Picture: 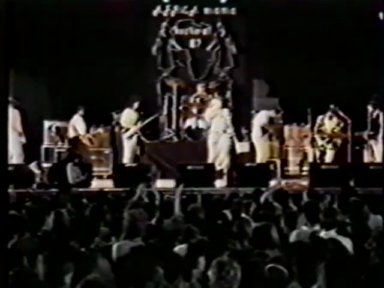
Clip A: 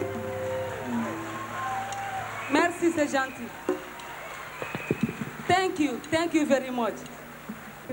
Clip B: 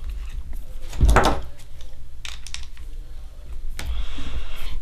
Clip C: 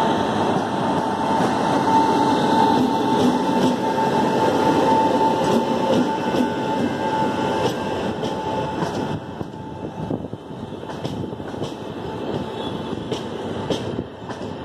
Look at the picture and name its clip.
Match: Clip A